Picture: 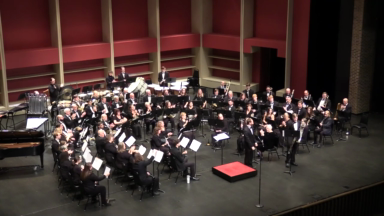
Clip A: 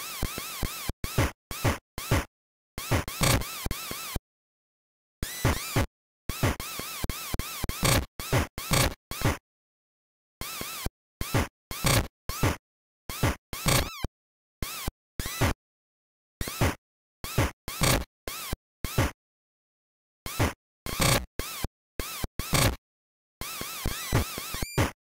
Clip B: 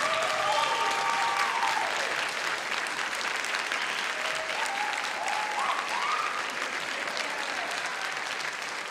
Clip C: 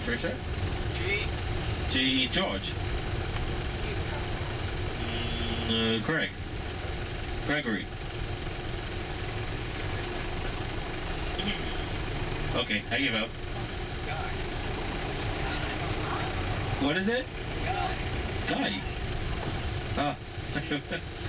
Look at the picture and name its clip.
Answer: B